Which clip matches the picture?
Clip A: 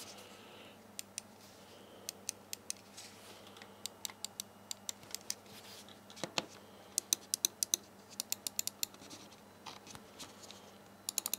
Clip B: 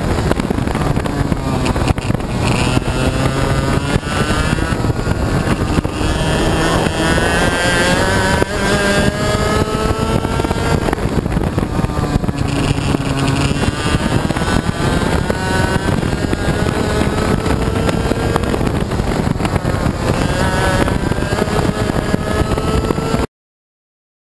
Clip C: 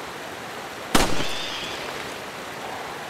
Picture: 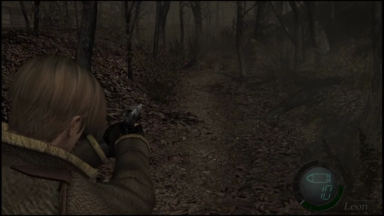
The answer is C